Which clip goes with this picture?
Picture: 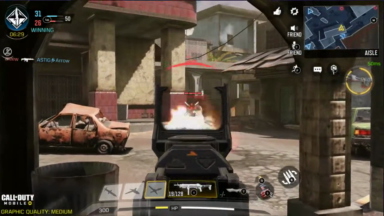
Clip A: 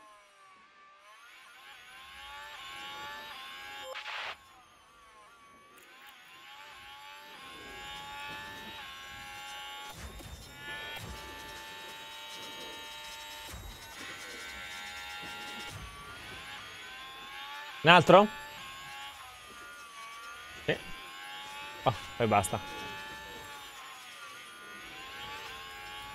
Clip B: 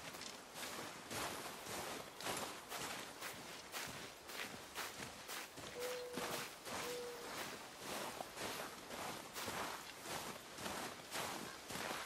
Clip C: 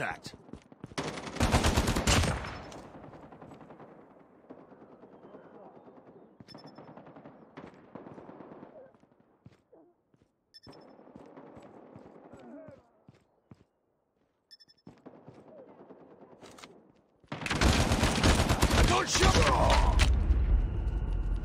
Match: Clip C